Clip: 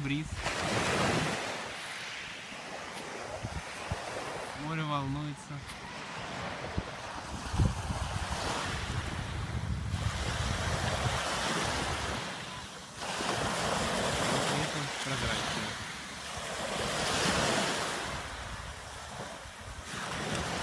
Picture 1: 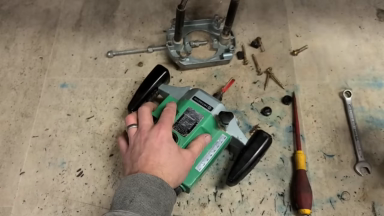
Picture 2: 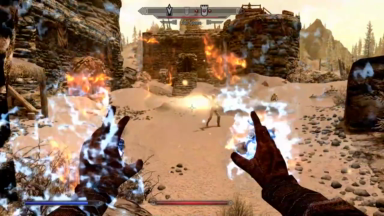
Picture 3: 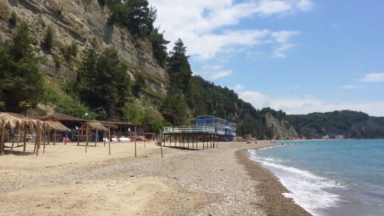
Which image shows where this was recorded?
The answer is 3